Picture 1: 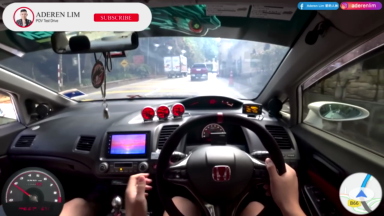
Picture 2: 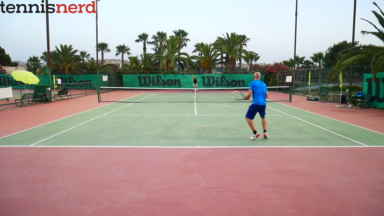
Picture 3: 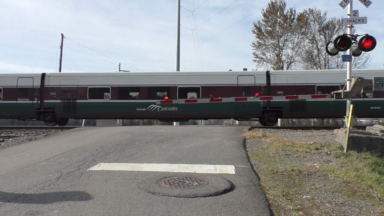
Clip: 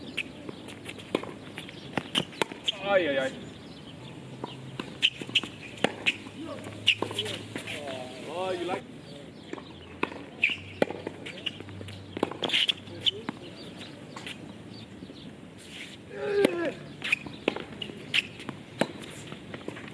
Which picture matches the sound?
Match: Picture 2